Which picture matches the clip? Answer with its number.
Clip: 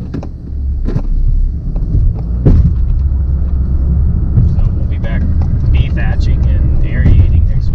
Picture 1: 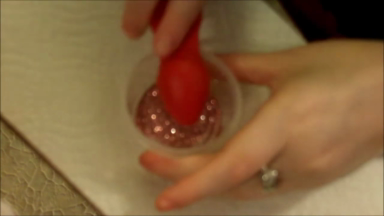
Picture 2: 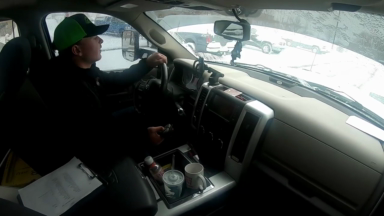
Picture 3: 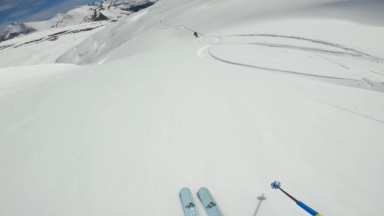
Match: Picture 2